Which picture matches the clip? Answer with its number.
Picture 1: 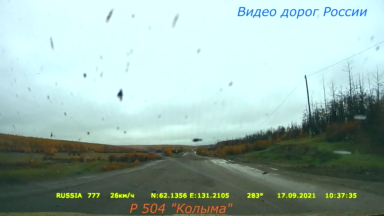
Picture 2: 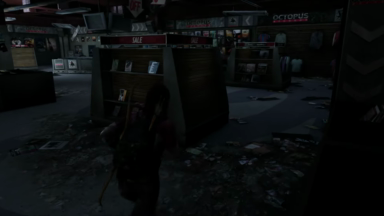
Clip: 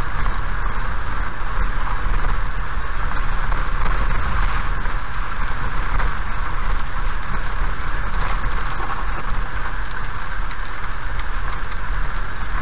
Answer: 1